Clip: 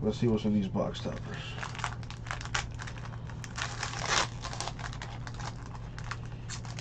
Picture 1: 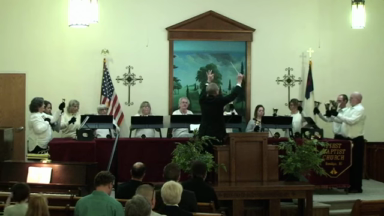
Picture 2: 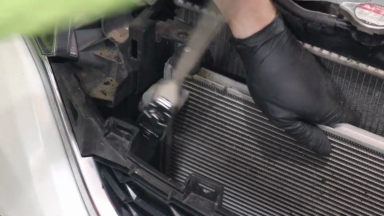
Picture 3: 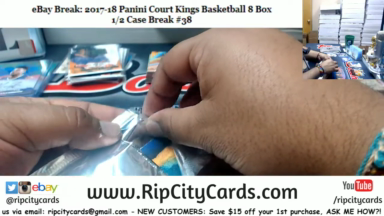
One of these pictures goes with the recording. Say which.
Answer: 3